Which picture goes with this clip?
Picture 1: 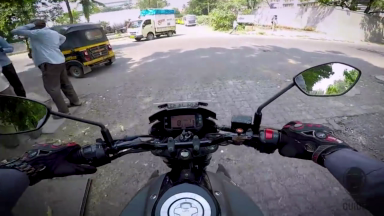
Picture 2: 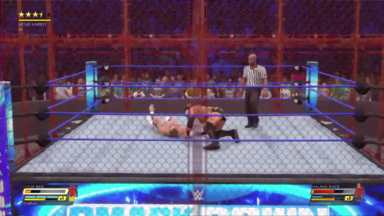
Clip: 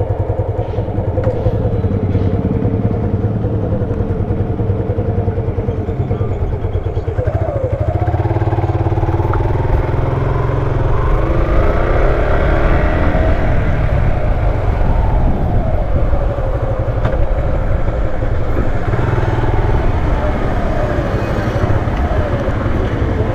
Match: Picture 1